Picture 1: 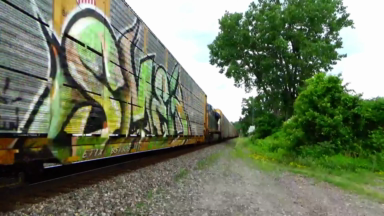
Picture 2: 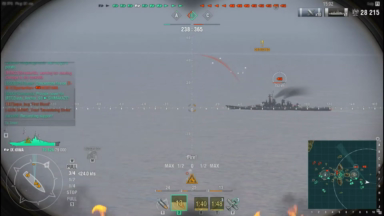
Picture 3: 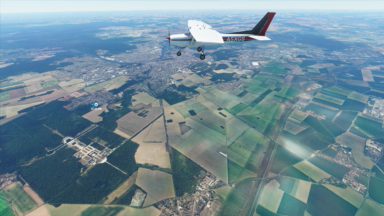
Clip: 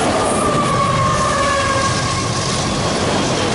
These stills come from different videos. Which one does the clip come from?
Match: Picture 1